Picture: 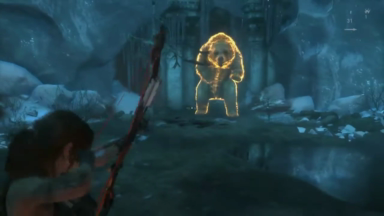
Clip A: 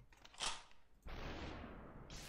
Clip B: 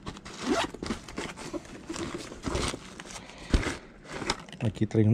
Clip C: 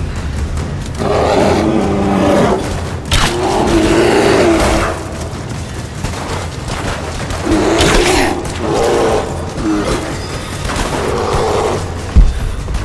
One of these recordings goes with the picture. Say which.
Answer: C